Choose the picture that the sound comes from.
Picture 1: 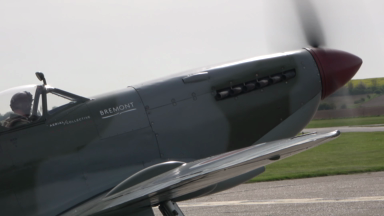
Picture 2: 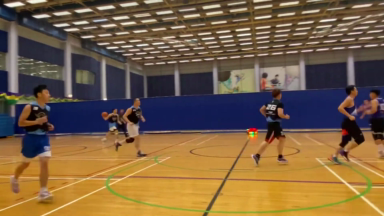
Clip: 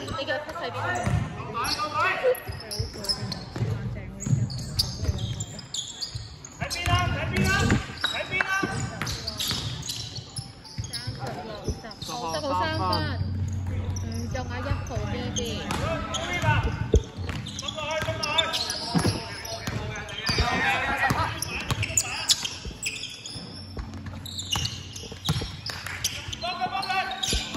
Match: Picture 2